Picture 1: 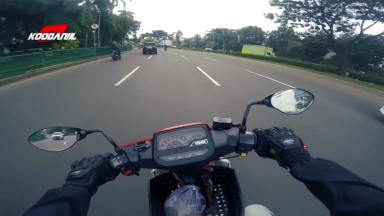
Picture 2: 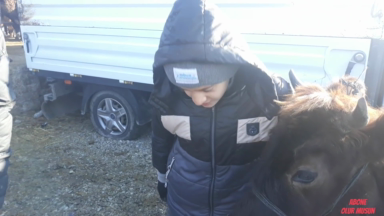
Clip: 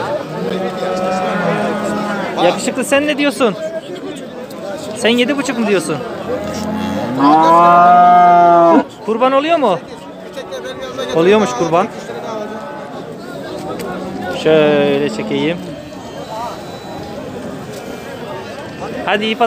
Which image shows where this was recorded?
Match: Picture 2